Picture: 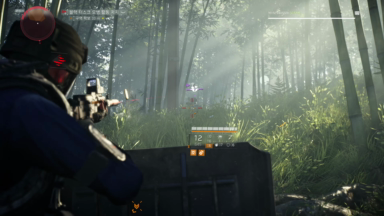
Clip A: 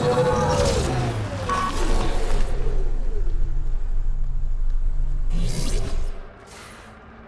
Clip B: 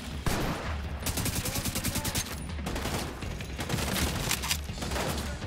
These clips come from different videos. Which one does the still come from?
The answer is B